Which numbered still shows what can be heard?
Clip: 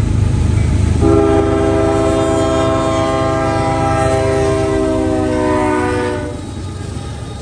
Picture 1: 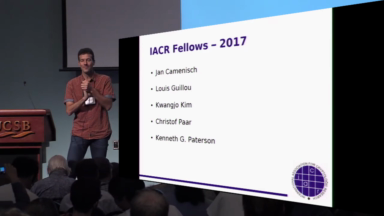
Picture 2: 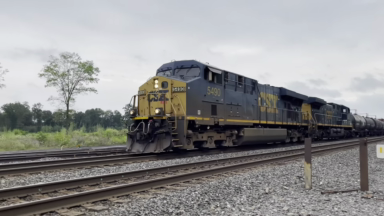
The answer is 2